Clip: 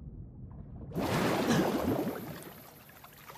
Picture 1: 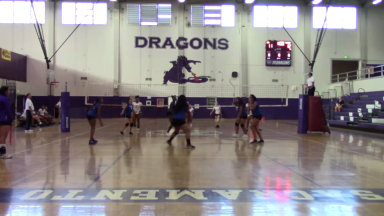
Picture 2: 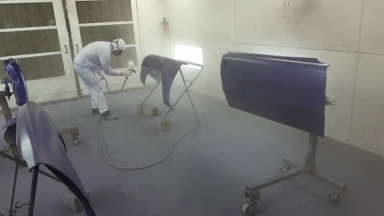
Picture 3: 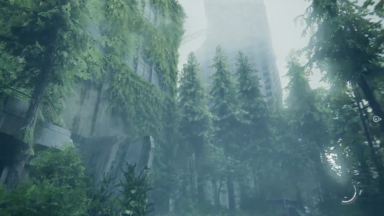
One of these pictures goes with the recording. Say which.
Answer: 3